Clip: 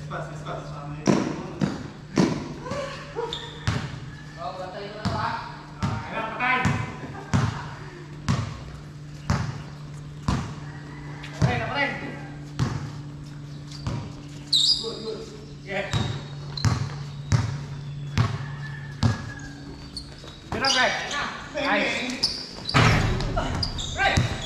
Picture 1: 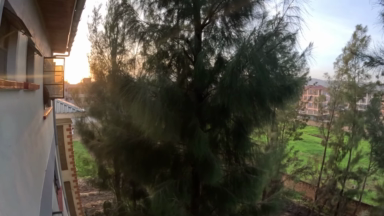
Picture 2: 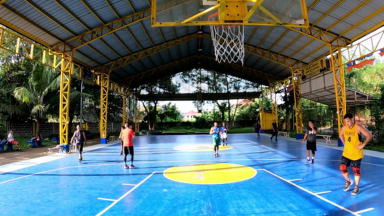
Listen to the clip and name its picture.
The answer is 2